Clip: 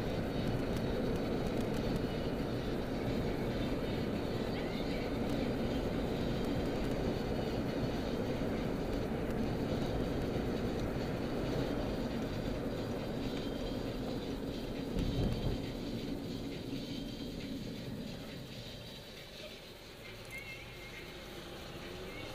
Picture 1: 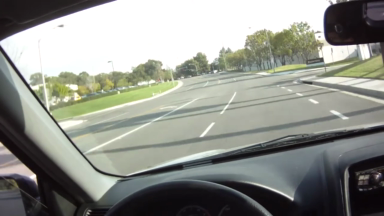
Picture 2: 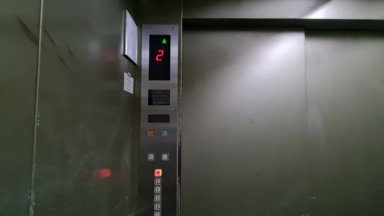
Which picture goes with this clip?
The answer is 1